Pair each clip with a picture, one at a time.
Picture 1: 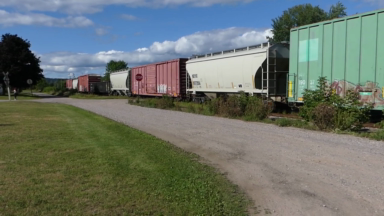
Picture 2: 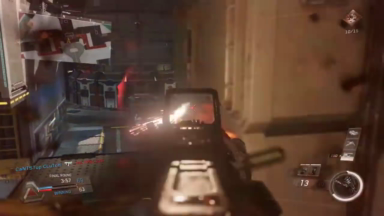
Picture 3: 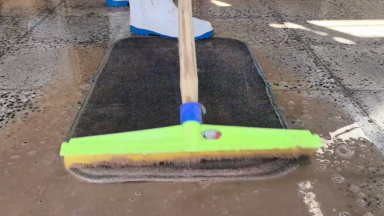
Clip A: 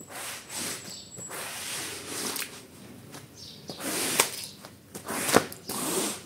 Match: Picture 3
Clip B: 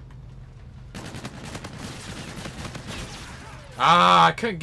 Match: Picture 2